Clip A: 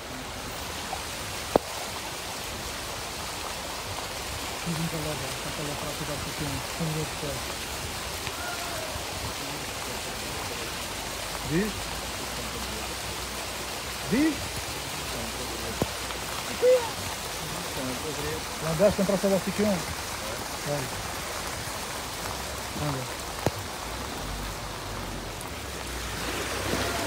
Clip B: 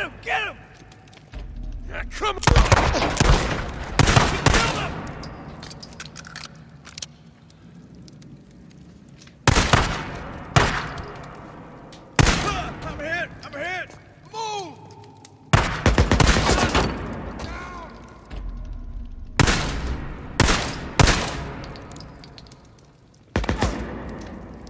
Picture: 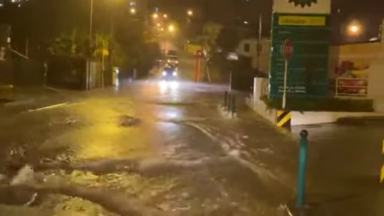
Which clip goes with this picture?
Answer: A